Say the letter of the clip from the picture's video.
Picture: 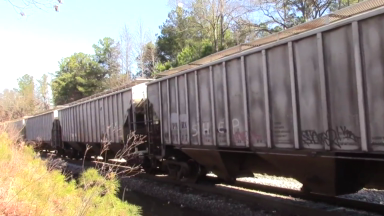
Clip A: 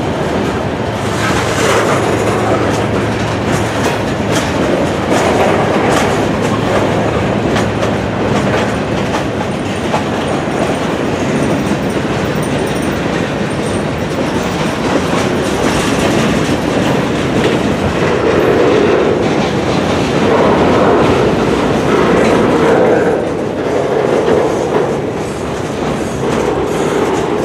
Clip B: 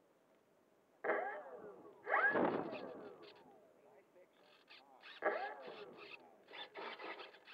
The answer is A